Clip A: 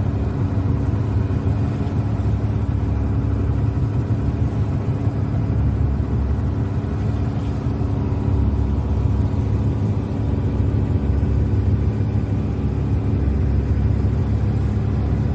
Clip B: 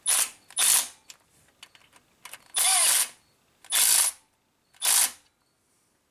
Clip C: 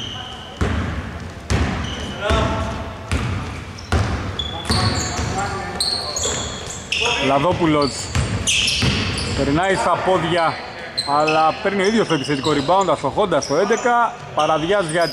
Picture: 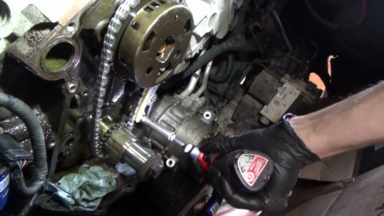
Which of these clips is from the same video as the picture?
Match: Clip B